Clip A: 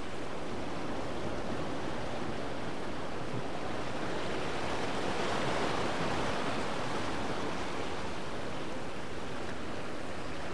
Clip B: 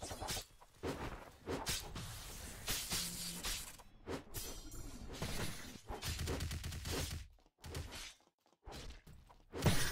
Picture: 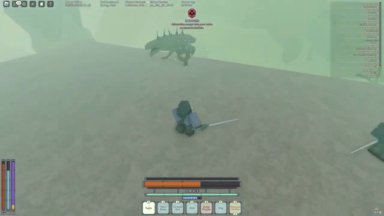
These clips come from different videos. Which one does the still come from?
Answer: B